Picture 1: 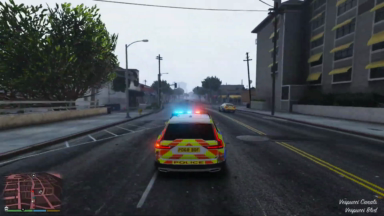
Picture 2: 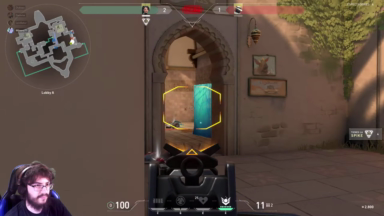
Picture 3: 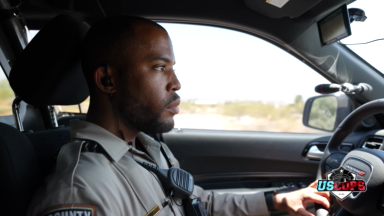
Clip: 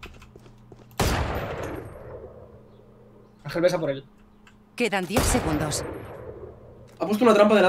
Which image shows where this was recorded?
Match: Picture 2